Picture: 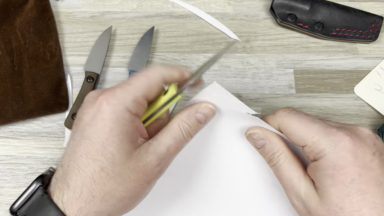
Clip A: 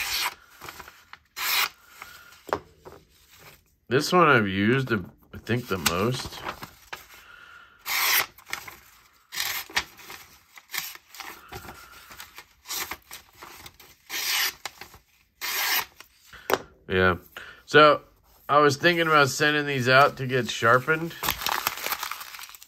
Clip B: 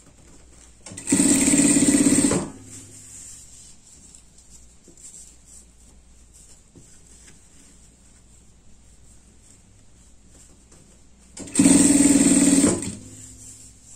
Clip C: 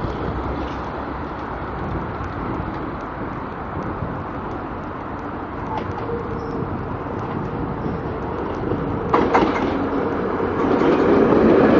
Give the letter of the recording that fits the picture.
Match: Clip A